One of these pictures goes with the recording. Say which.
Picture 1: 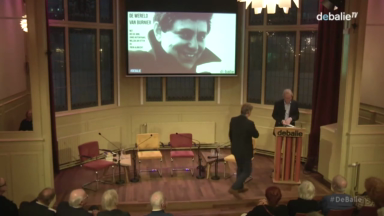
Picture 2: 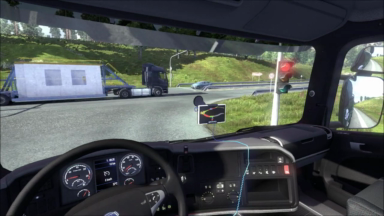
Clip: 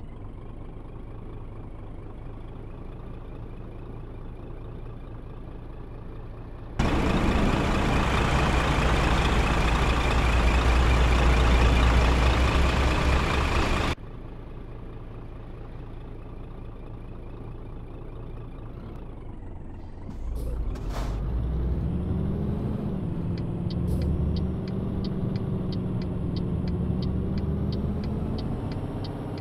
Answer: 2